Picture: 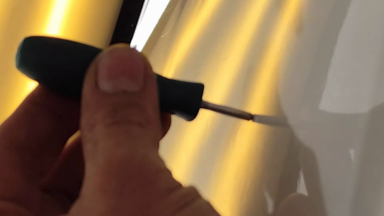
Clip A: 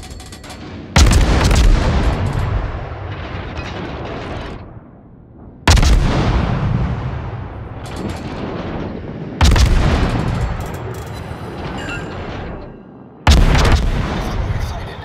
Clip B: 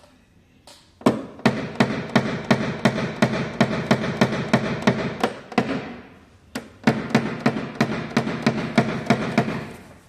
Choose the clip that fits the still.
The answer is B